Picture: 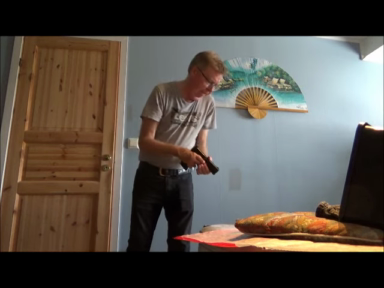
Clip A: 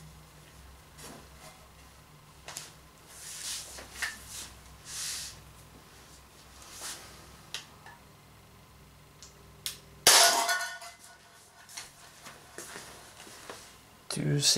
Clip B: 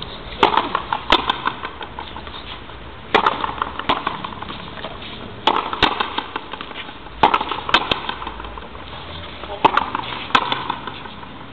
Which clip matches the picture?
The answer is A